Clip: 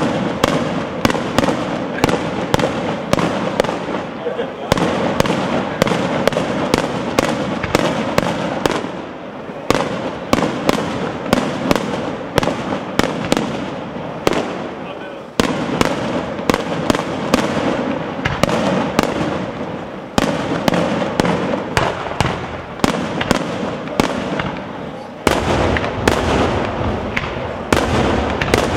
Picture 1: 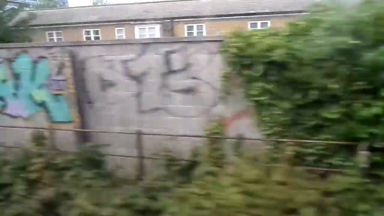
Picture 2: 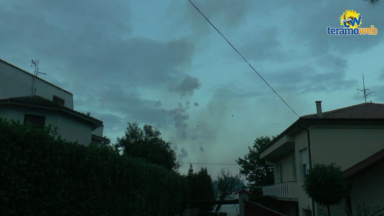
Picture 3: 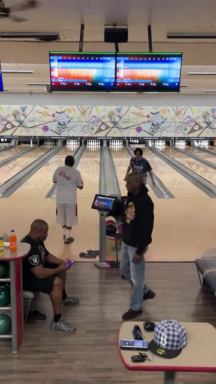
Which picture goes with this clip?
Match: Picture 2